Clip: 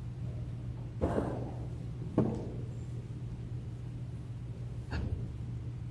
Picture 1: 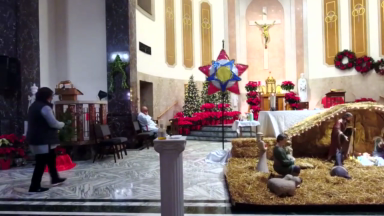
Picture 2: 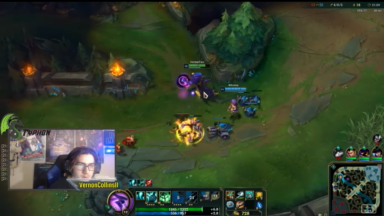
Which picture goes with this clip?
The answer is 1